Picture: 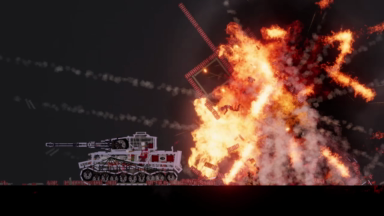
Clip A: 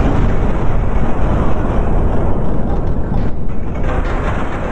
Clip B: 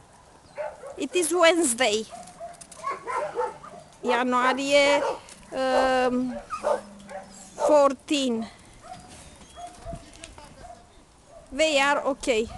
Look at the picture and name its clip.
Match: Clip A